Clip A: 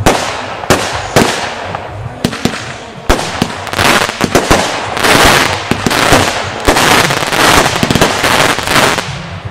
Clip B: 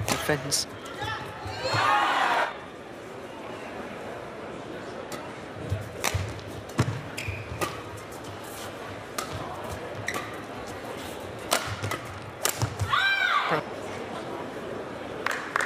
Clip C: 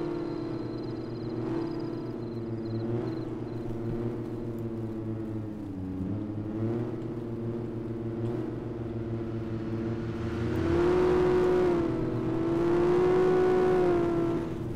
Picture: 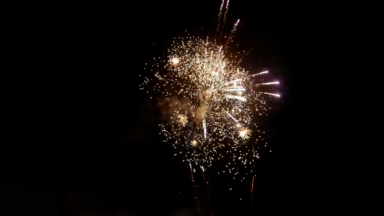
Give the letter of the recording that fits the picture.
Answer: A